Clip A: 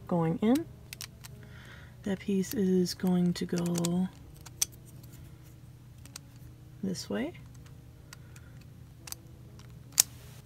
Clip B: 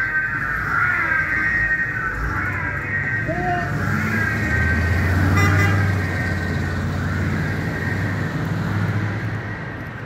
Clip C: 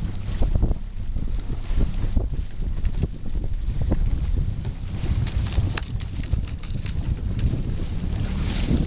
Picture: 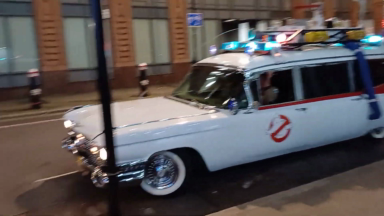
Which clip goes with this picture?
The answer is B